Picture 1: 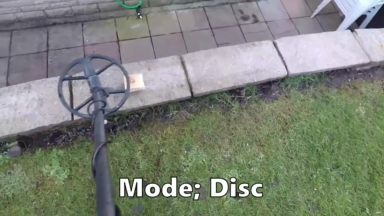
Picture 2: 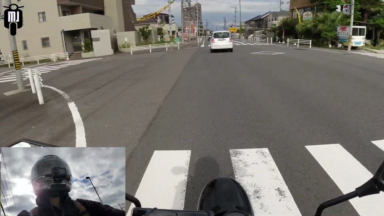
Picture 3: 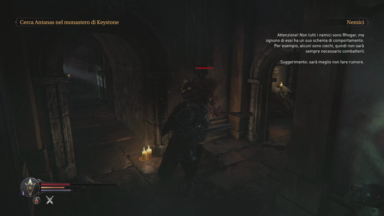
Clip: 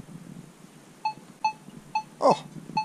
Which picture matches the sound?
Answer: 1